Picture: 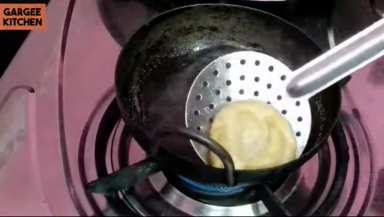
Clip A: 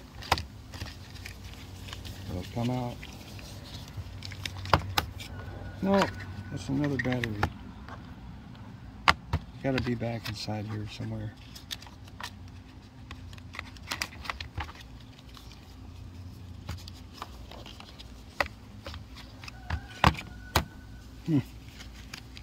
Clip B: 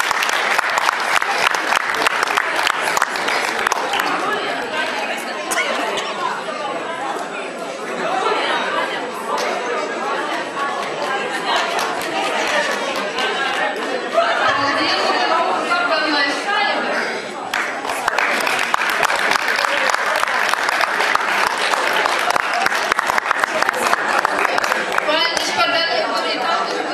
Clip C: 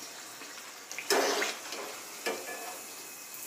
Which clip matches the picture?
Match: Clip C